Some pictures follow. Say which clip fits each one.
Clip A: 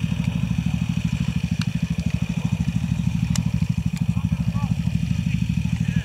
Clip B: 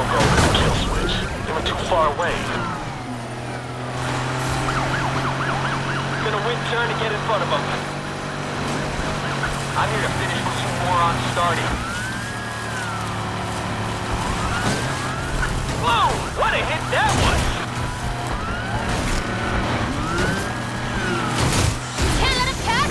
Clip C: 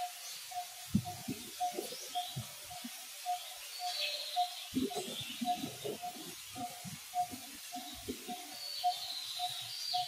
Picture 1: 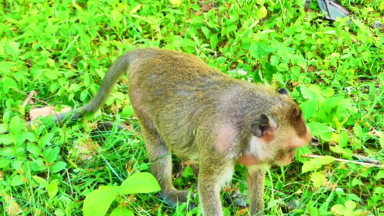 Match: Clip C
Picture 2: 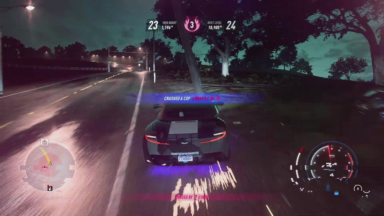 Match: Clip B